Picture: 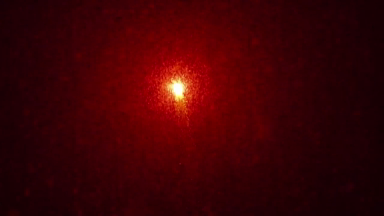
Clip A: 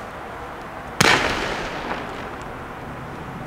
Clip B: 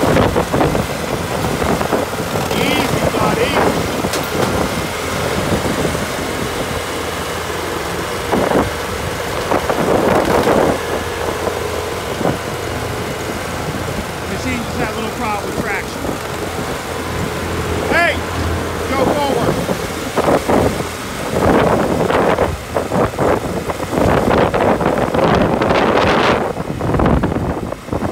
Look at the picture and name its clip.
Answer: A